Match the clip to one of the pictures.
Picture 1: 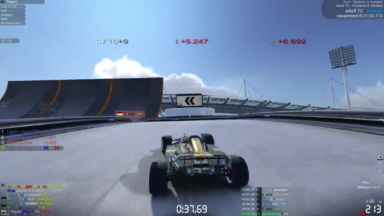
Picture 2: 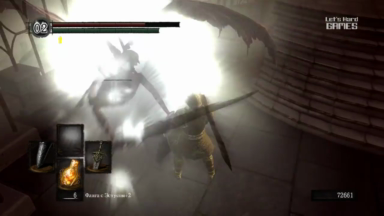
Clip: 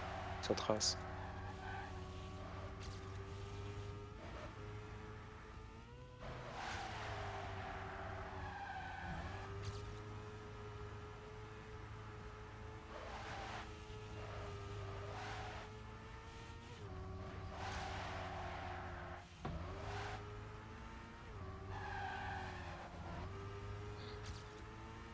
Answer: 1